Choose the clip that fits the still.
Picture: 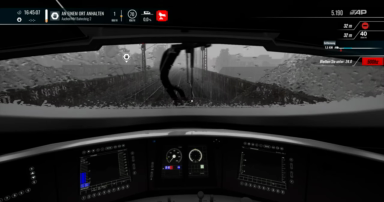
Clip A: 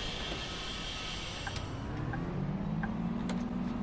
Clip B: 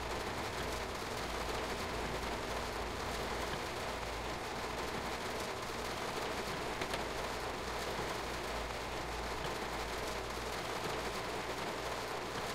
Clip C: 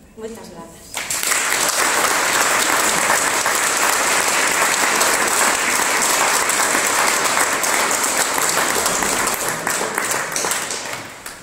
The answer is B